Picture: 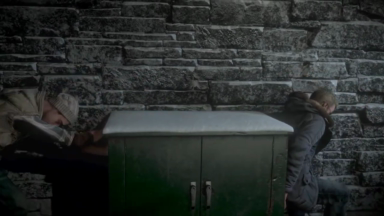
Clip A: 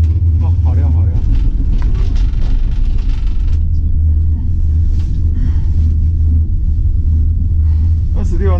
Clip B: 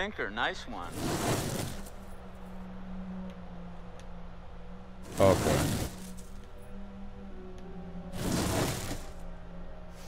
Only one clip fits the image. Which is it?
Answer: B